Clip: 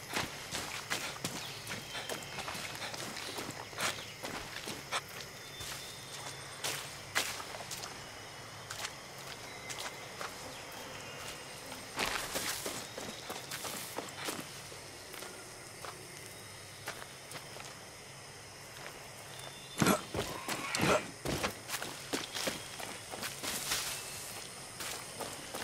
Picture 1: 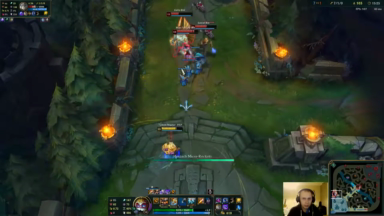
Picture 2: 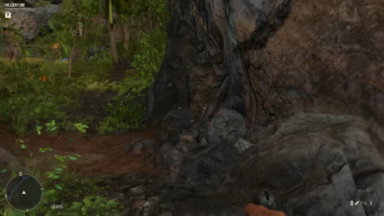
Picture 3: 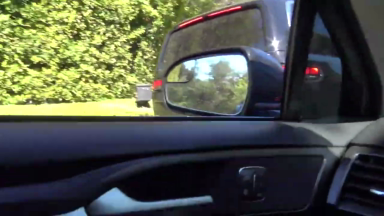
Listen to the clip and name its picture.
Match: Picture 2